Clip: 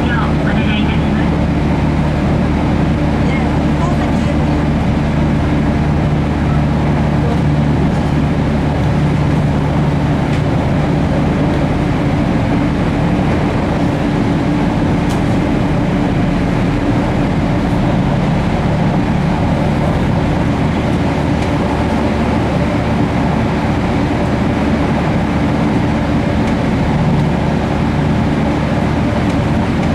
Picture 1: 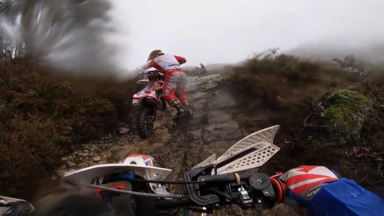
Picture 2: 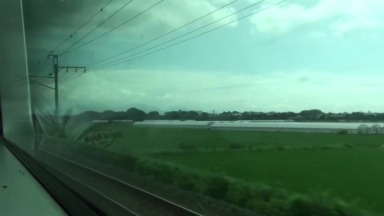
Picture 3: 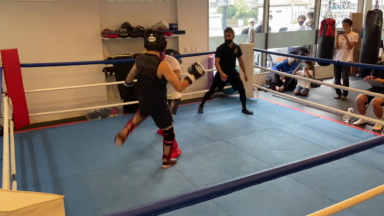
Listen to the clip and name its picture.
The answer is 2